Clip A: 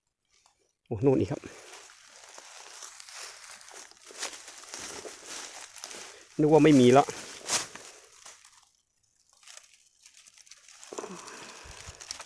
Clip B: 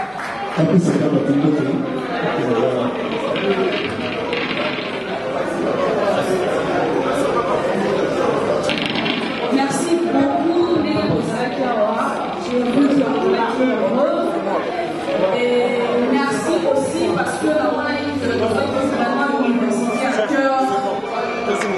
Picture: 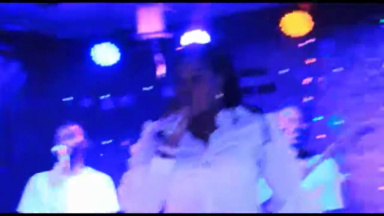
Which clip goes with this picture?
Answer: B